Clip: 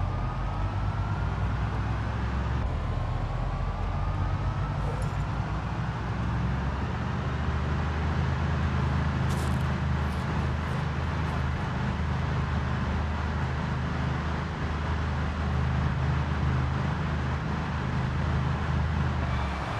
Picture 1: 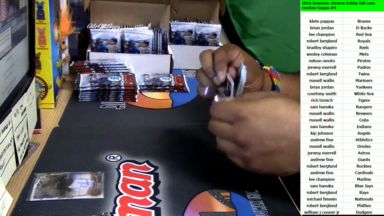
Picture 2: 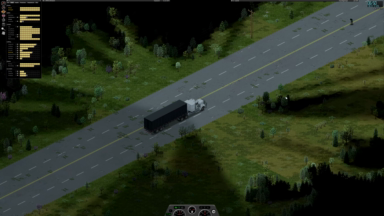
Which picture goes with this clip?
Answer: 2